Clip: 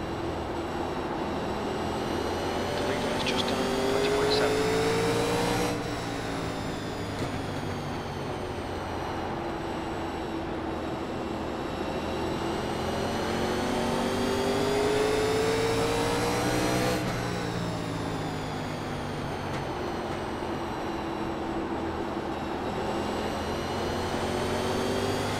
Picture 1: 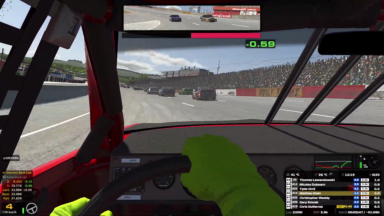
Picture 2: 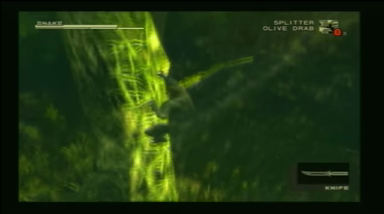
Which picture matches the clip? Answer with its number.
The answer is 1